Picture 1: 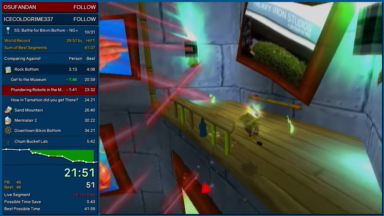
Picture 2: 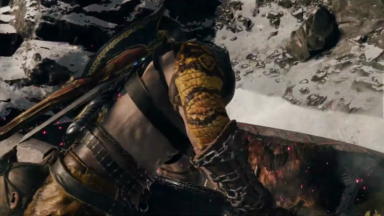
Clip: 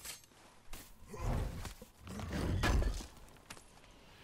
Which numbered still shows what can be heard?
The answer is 2